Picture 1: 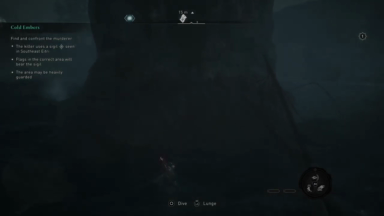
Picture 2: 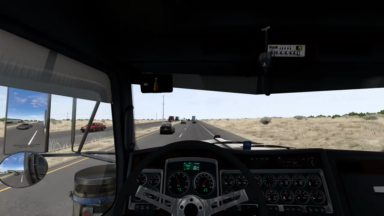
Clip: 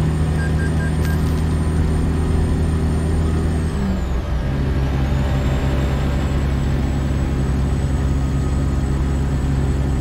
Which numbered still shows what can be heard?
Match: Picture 2